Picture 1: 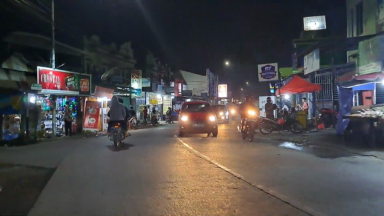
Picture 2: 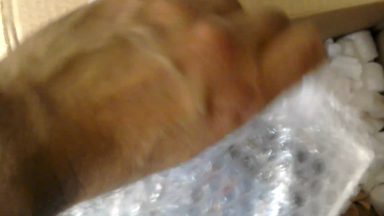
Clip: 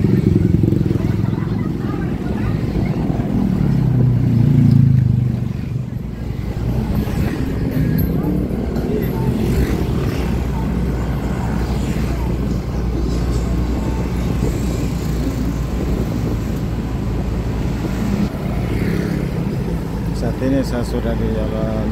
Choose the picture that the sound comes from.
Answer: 1